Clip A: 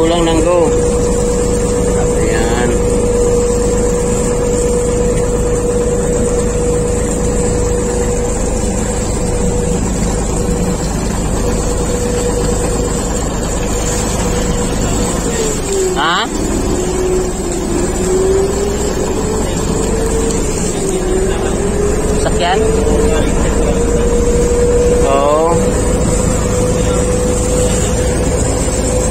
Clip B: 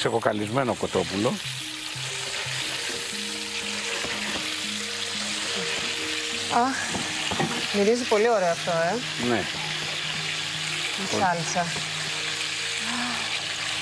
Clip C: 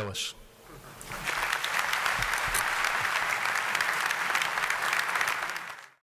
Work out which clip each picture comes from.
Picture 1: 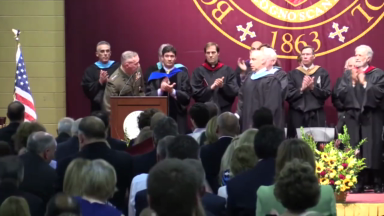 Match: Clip C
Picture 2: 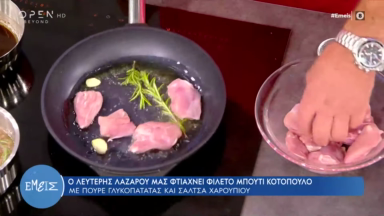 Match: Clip B